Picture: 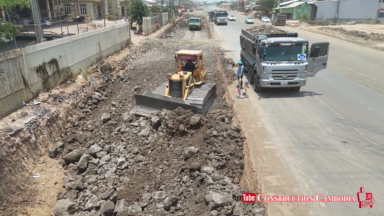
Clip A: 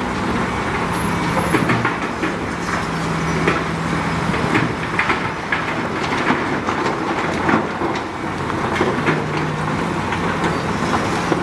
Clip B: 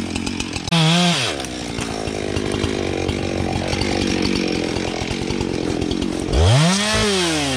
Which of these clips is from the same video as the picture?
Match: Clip A